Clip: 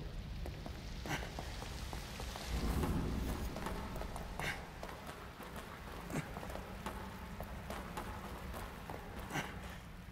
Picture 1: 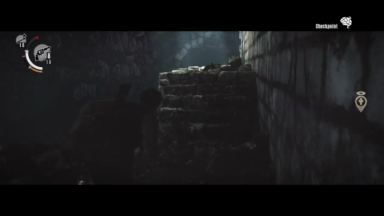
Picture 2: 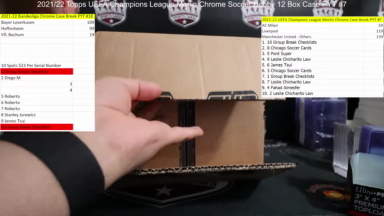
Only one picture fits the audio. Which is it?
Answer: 1